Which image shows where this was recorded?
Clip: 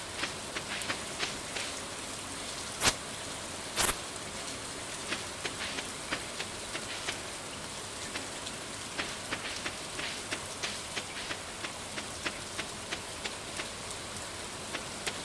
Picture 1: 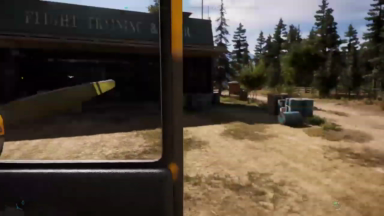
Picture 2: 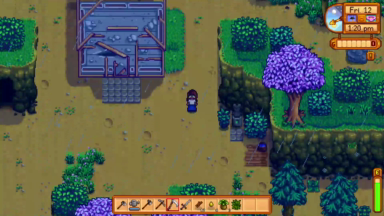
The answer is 2